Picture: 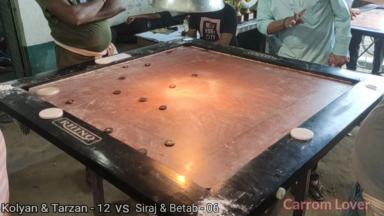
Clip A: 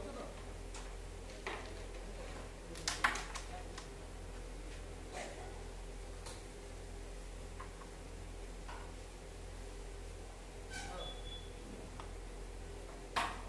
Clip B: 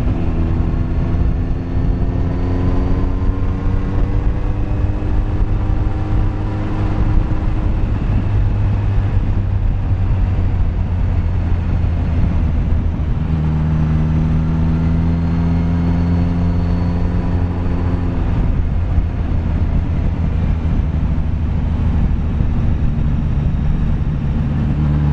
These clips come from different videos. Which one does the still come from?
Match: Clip A